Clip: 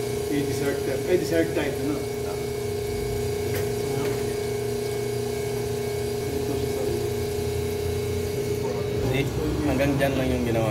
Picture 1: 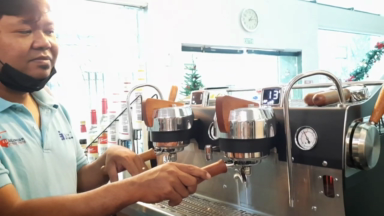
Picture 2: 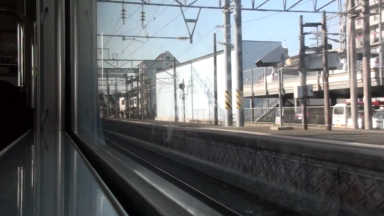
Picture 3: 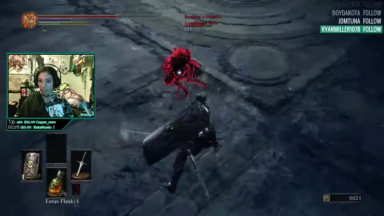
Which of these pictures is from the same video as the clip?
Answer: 1